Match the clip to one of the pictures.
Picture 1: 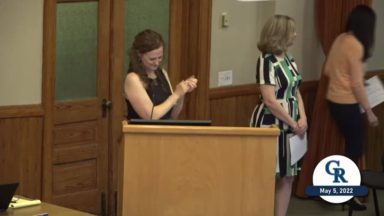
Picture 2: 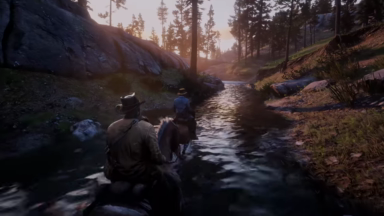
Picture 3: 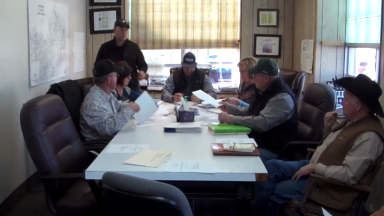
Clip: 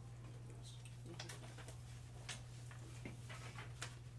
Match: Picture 3